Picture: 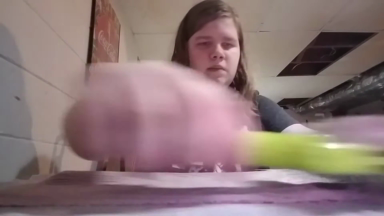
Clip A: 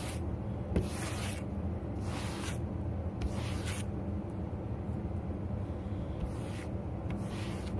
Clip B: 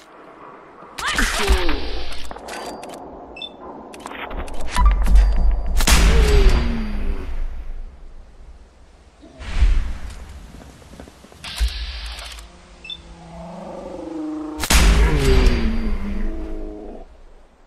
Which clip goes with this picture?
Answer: A